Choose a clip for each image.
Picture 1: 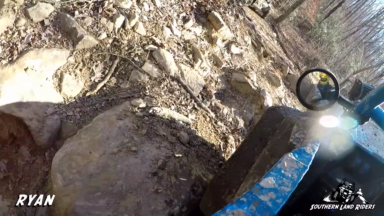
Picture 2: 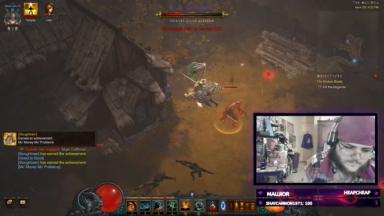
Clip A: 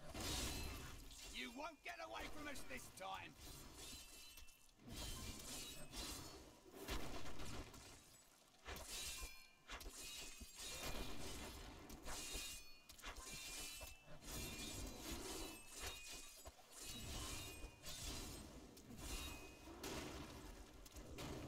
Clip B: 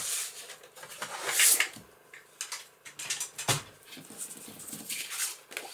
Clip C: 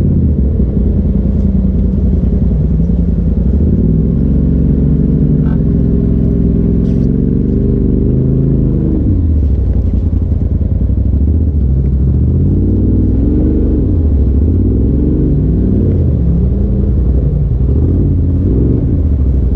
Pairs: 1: C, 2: A